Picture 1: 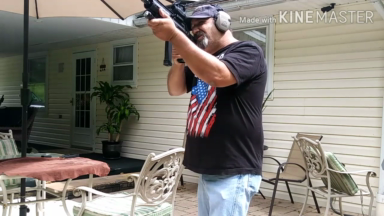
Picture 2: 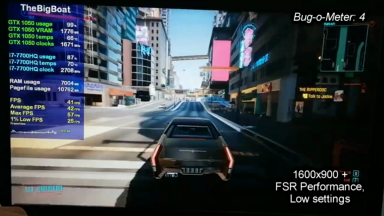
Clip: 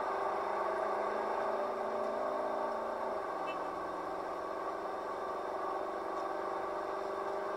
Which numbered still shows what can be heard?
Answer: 2